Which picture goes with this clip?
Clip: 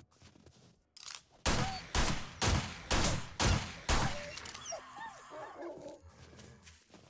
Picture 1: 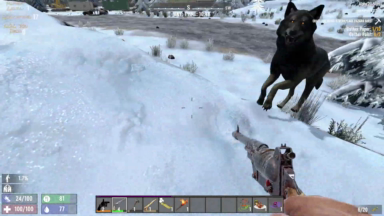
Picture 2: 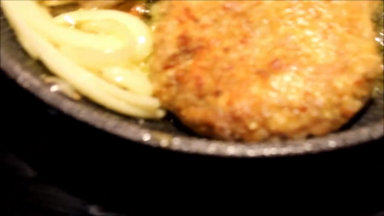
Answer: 1